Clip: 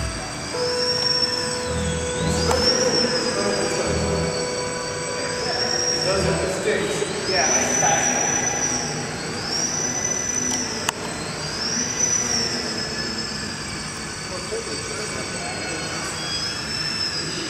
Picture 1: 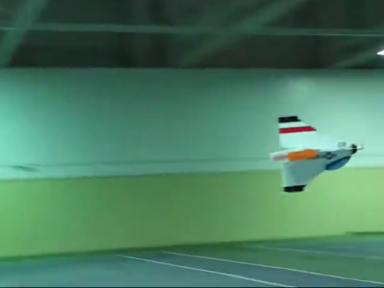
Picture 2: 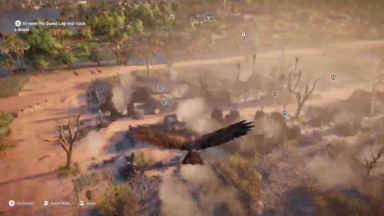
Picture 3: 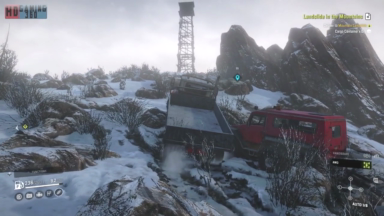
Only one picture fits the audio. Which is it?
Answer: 1